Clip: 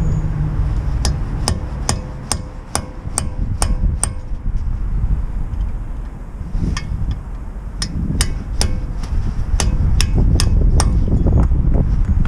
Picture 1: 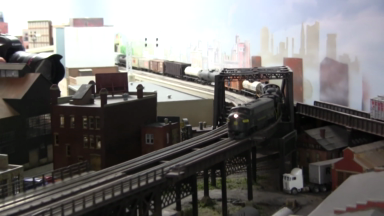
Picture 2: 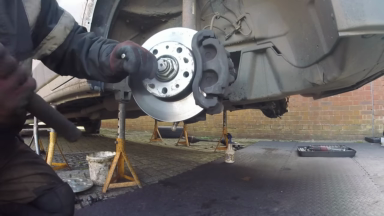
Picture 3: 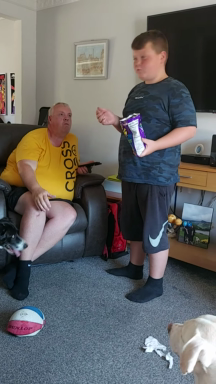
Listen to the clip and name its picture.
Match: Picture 2